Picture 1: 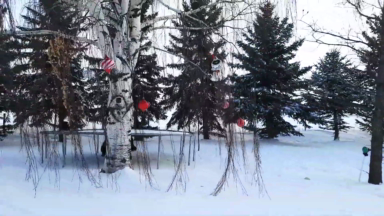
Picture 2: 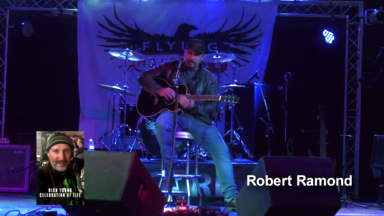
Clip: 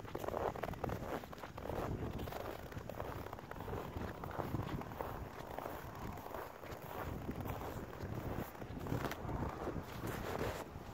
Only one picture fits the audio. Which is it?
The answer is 1